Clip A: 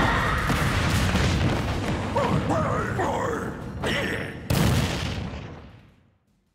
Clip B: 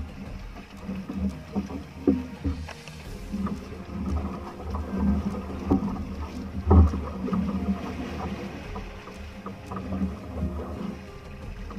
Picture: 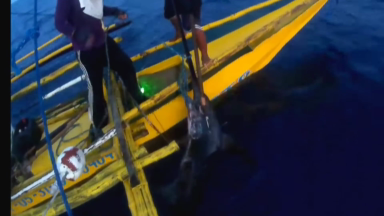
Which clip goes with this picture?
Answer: B